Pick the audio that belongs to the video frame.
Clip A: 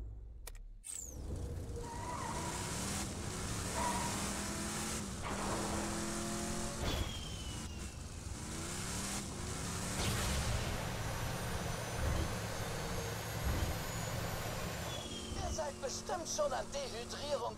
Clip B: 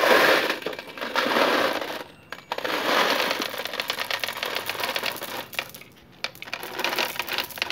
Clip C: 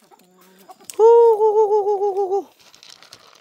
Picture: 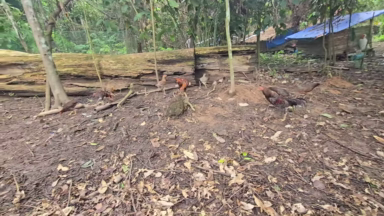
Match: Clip C